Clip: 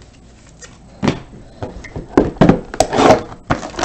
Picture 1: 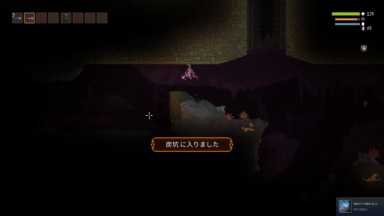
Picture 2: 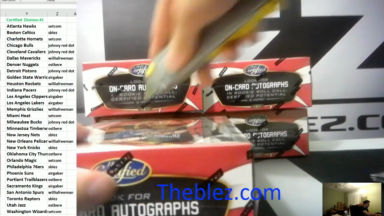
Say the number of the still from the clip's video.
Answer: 2